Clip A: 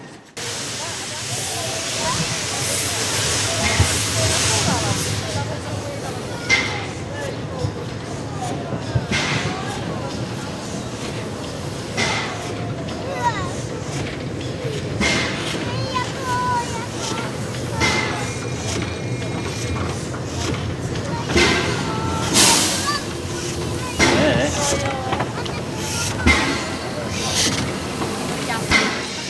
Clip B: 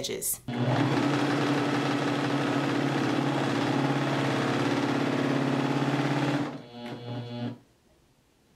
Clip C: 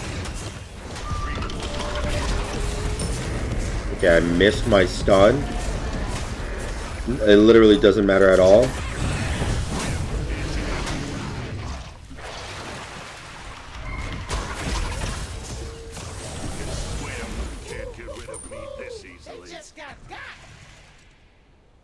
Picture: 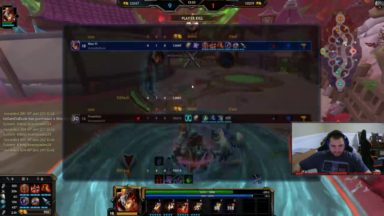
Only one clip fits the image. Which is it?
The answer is C